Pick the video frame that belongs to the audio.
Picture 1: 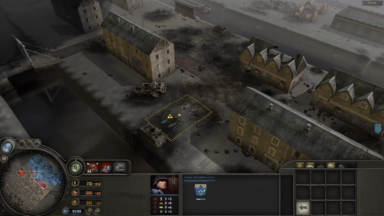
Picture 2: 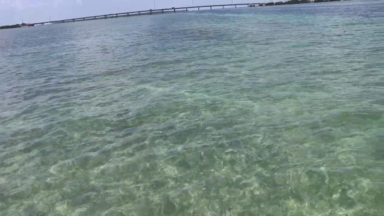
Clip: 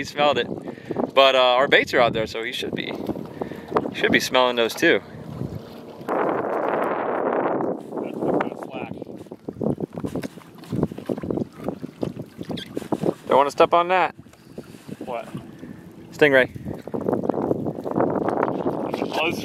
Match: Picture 2